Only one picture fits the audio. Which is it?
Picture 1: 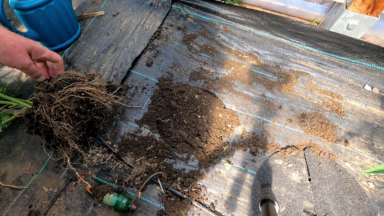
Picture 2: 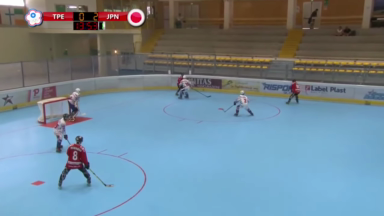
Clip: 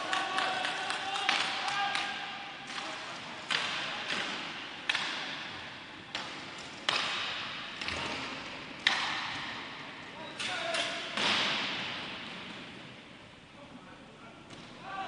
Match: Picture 2